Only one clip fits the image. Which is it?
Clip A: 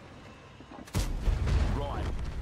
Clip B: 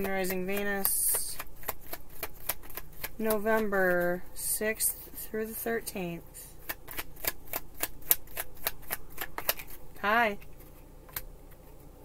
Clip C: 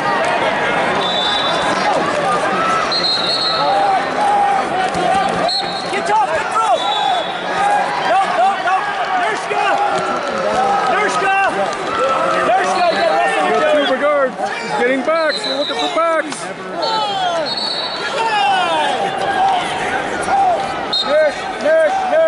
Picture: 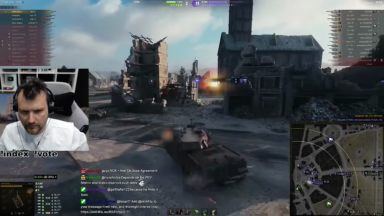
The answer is A